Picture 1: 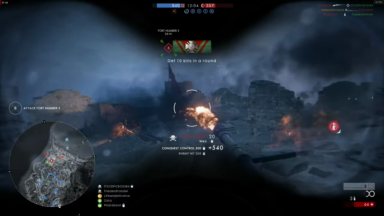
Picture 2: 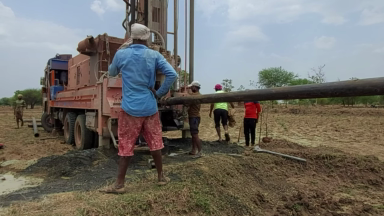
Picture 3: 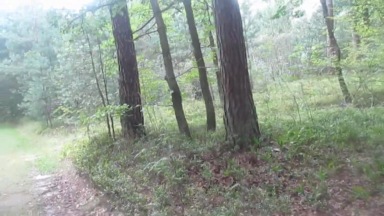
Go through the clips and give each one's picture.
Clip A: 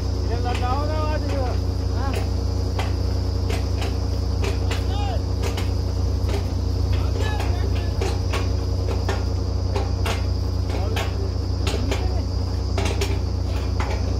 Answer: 2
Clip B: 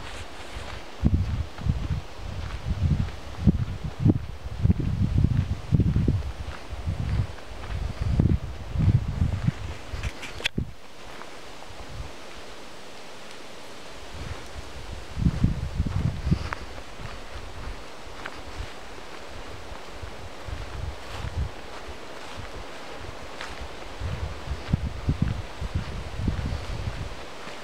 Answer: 3